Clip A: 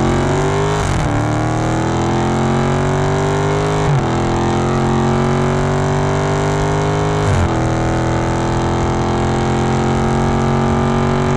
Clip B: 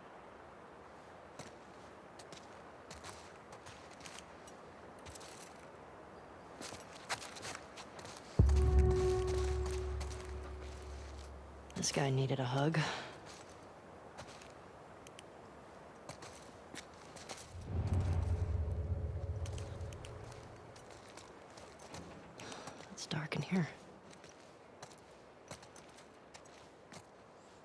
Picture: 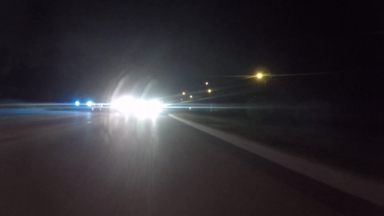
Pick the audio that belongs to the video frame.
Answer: A